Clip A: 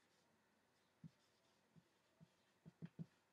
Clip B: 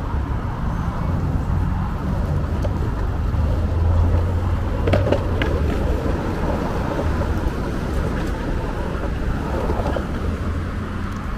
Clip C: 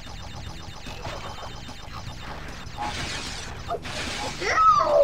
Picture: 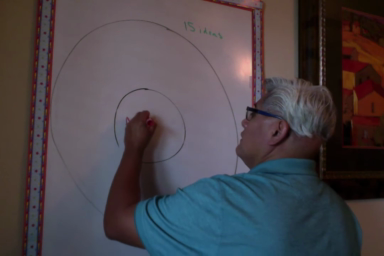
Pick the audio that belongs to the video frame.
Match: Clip A